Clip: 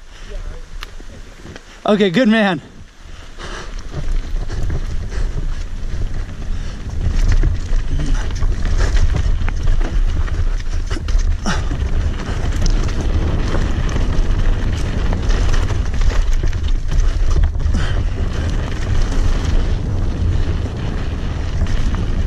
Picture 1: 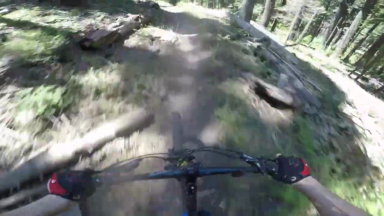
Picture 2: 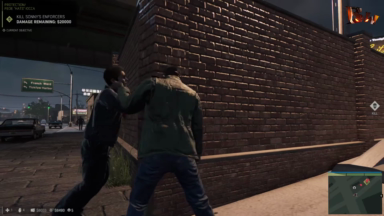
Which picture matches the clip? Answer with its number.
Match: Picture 1